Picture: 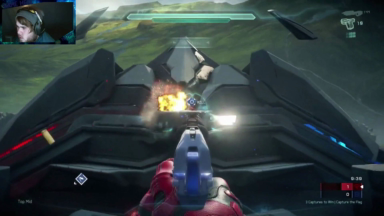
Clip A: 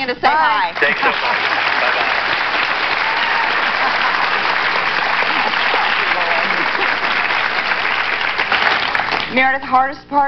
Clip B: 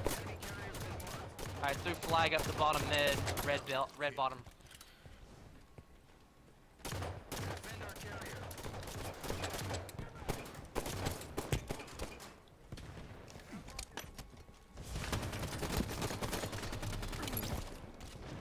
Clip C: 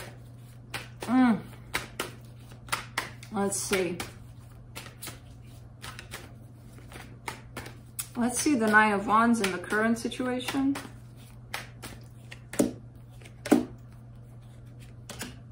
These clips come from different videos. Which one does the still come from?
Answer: B